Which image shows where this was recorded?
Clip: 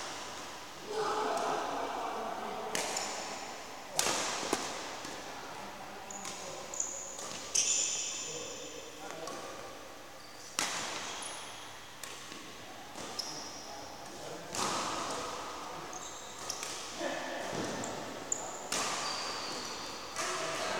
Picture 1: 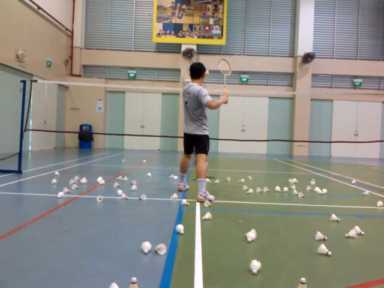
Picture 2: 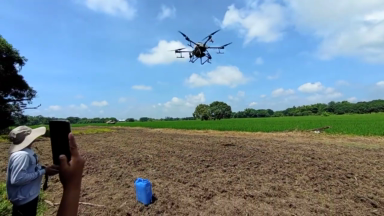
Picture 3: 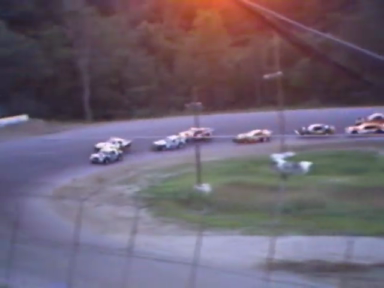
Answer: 1